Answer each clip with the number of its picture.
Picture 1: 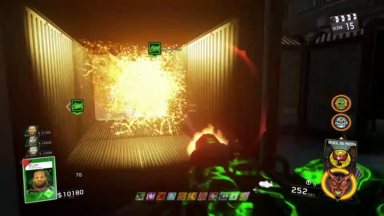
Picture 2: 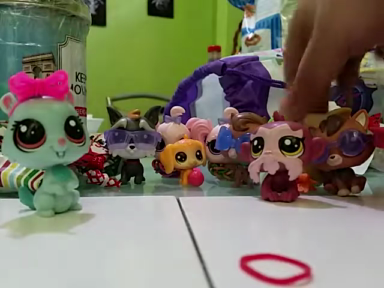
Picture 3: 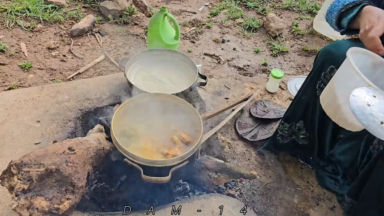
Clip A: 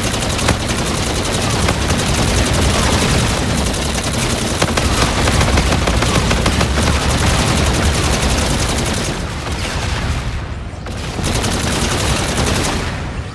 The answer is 1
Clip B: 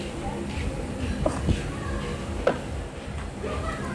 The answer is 2